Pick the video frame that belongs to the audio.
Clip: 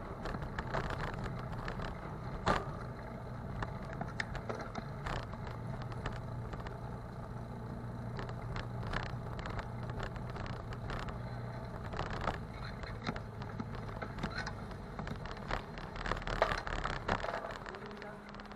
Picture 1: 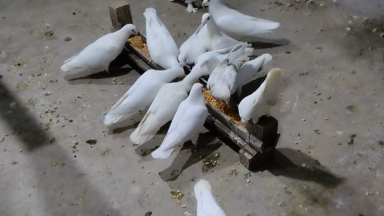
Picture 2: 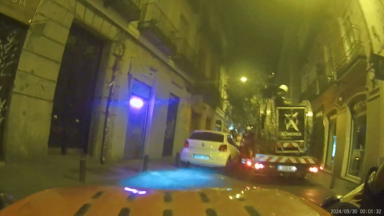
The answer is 2